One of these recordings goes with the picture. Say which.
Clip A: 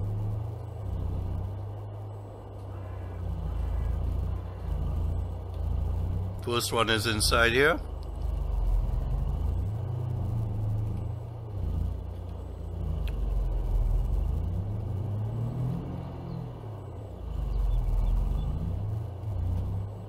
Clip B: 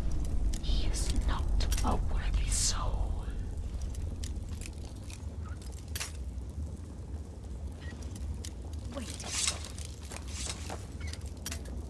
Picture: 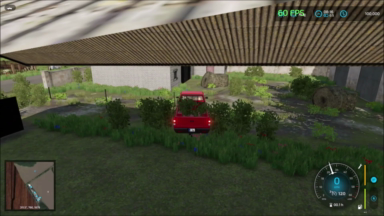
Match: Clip A